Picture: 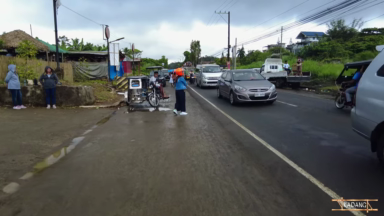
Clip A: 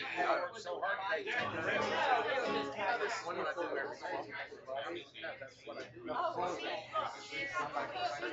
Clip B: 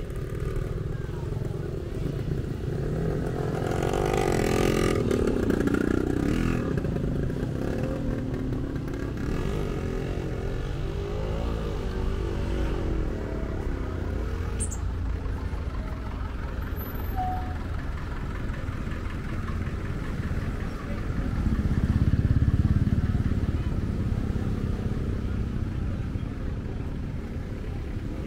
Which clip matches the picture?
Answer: B